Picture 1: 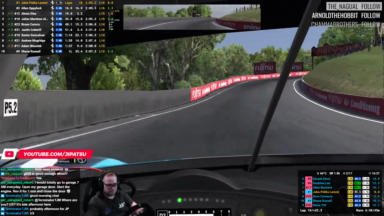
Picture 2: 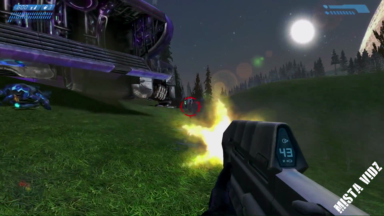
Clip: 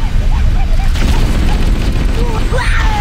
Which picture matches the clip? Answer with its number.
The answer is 2